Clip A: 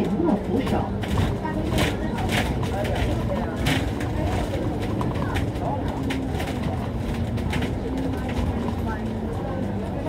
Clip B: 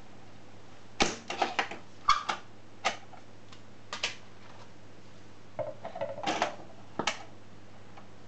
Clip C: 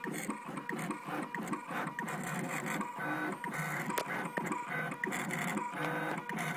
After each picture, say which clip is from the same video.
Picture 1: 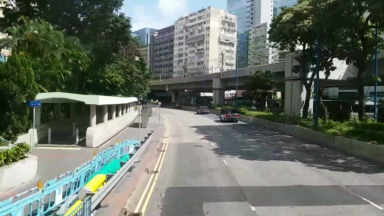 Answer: A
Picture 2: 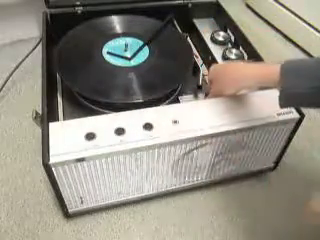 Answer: B